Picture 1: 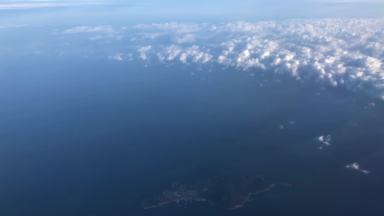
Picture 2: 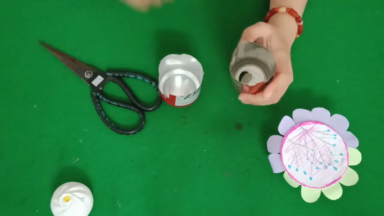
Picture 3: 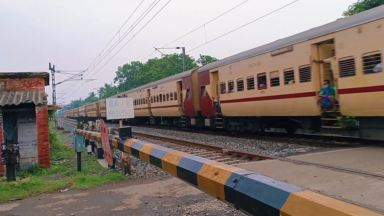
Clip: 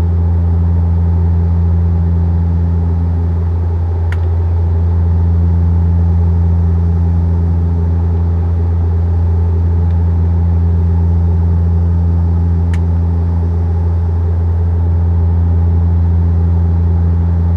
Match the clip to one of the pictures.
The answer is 1